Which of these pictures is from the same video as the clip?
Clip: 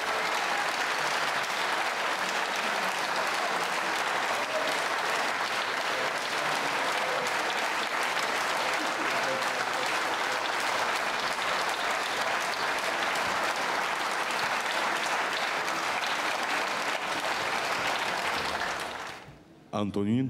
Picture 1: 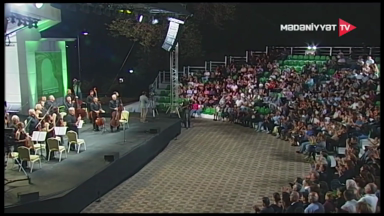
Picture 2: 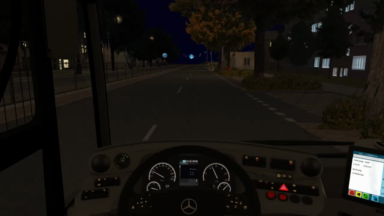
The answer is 1